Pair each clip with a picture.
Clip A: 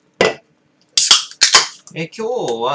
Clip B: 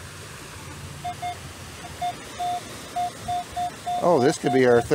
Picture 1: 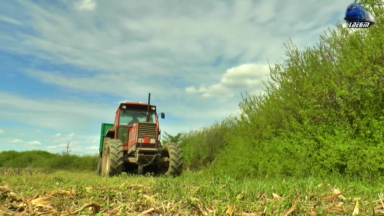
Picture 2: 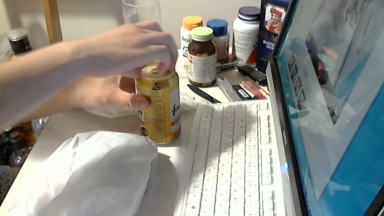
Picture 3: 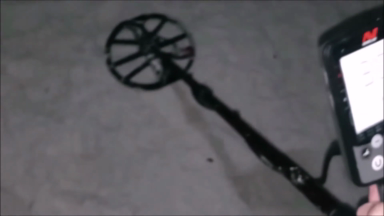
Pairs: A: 2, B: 3